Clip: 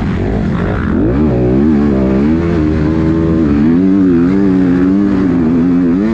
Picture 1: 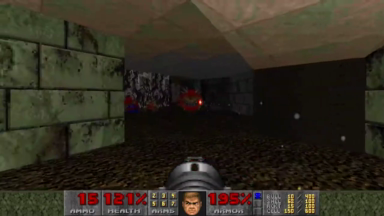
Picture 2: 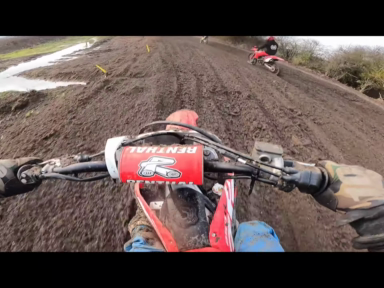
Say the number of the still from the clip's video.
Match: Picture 2